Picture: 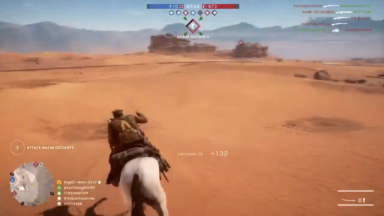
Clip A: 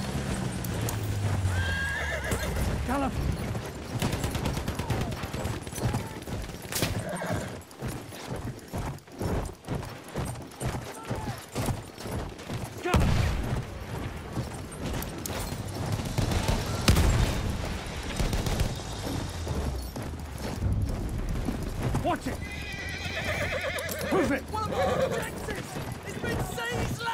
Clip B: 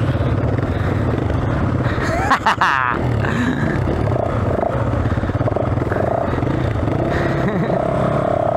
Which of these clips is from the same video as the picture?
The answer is A